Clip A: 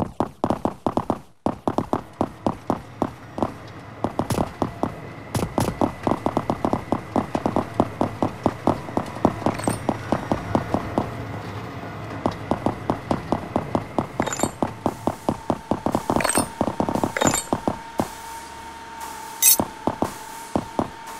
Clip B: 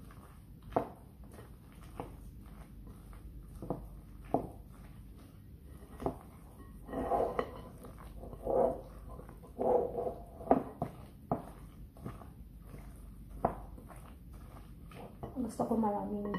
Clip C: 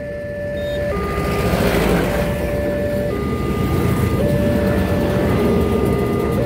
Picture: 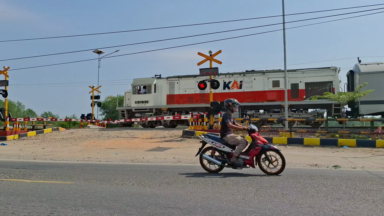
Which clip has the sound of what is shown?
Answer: C